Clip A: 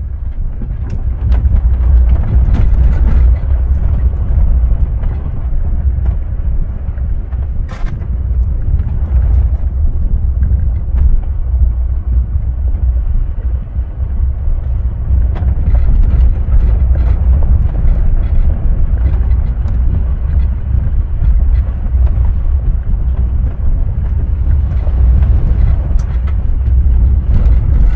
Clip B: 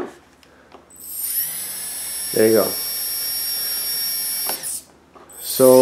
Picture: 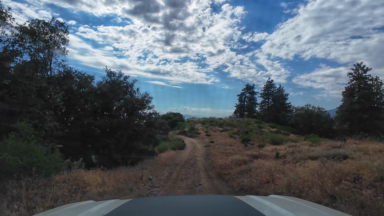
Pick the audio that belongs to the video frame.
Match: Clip A